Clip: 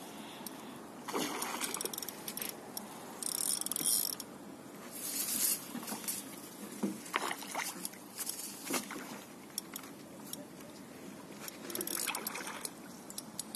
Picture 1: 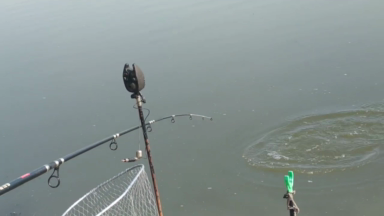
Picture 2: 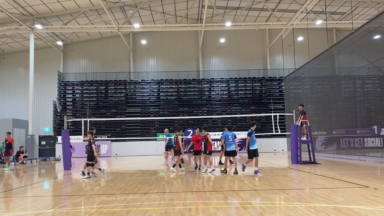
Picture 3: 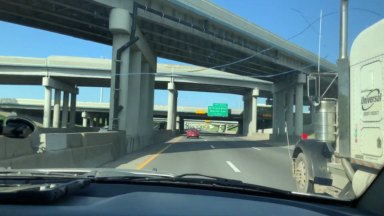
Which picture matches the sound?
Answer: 1